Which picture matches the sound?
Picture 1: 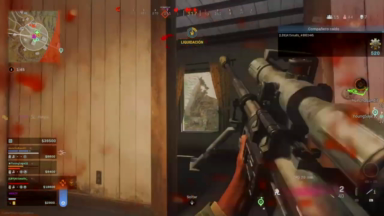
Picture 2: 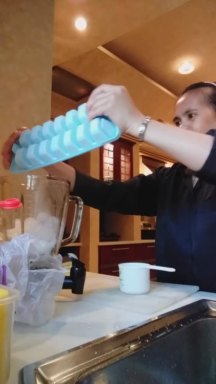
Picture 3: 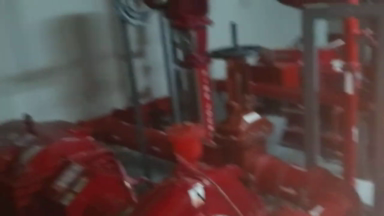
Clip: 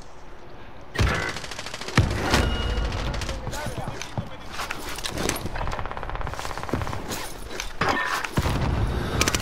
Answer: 1